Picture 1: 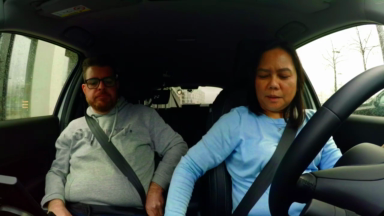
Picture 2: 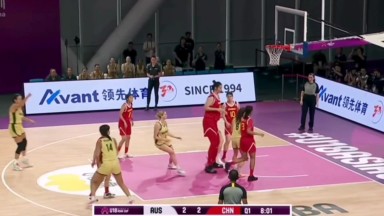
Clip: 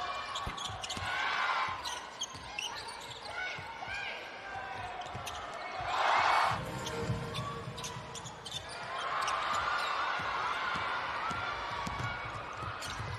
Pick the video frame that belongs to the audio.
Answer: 2